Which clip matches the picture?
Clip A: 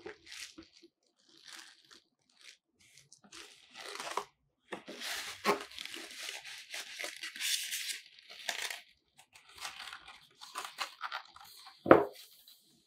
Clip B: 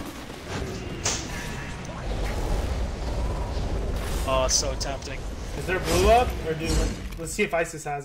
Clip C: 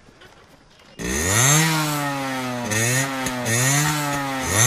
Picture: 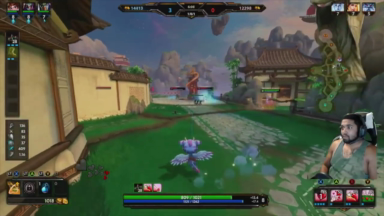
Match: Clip B